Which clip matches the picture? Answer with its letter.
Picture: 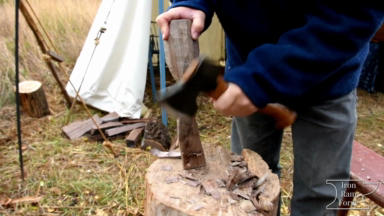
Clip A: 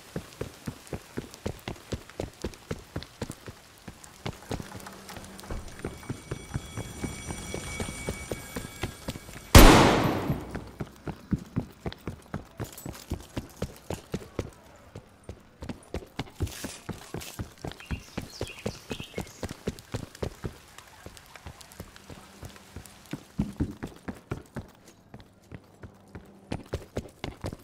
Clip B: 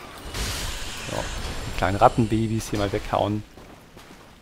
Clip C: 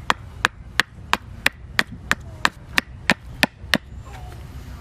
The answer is C